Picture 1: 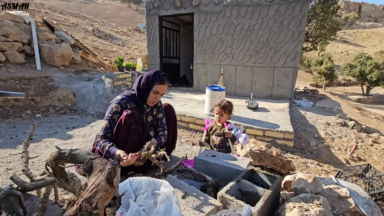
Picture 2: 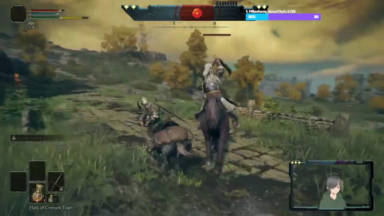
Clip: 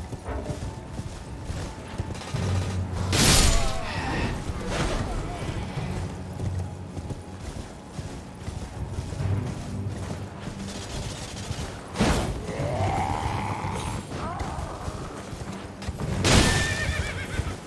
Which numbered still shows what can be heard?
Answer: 2